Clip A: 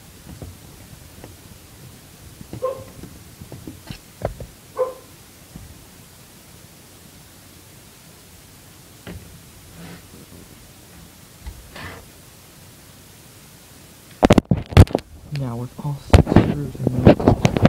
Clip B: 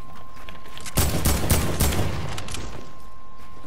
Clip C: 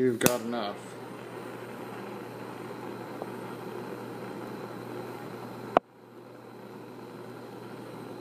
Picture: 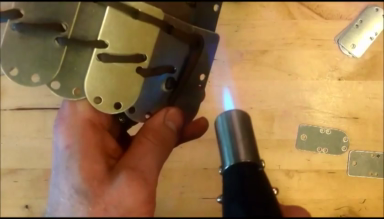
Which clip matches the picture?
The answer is C